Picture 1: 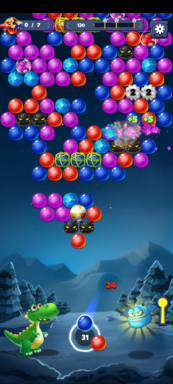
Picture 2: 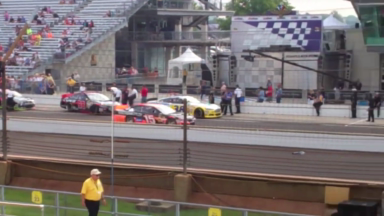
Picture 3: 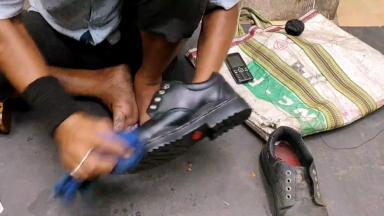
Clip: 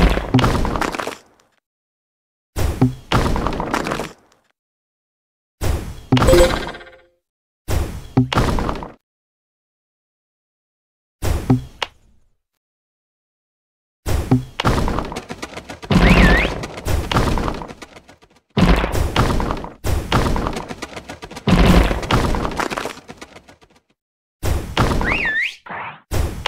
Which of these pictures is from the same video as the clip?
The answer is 1